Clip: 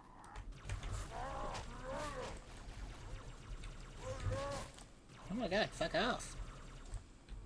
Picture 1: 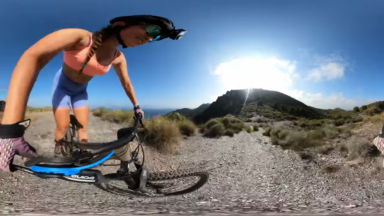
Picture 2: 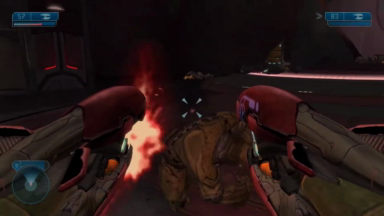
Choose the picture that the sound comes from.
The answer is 2